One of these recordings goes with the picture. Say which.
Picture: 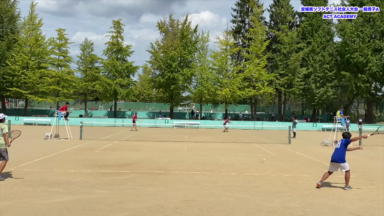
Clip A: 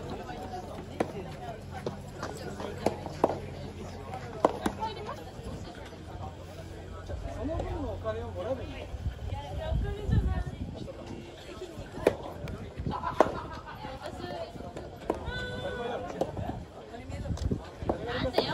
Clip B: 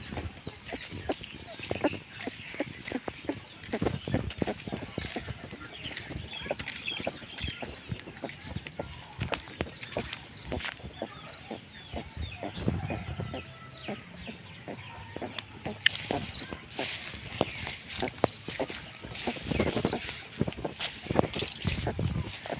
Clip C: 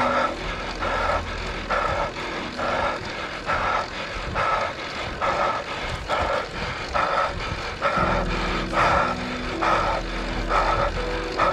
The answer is A